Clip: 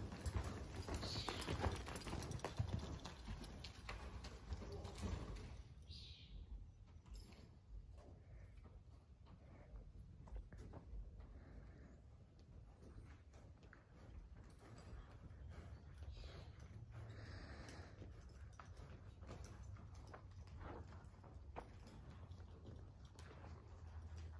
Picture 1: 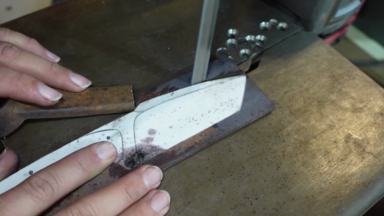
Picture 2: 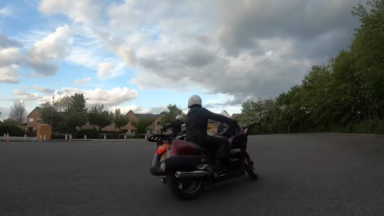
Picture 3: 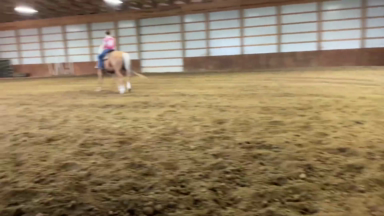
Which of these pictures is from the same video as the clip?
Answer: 3